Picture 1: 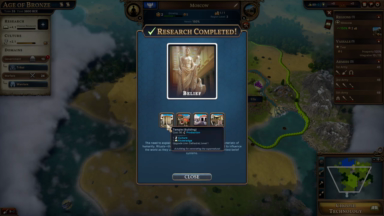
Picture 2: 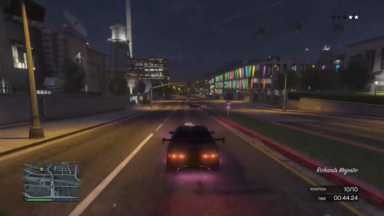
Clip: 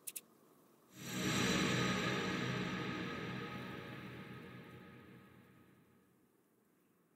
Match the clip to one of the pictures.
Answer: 1